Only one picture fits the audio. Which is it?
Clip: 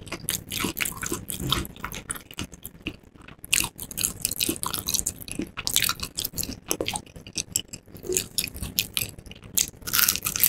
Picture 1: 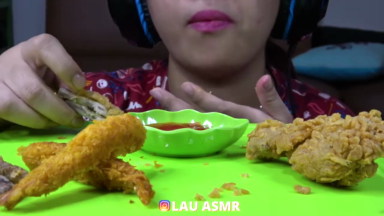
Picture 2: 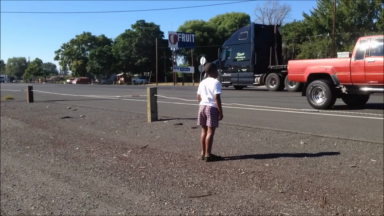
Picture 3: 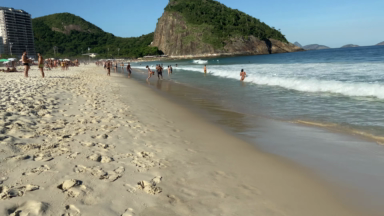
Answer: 1